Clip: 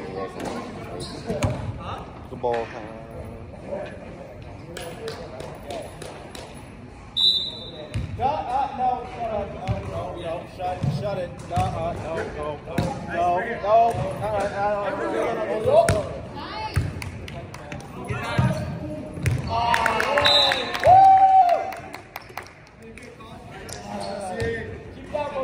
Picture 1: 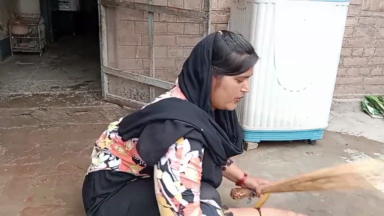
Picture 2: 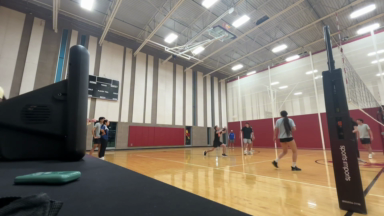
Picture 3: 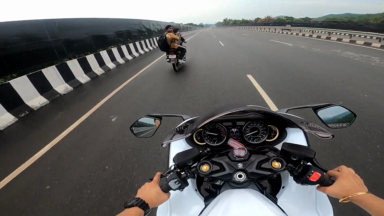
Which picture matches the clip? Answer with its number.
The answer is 2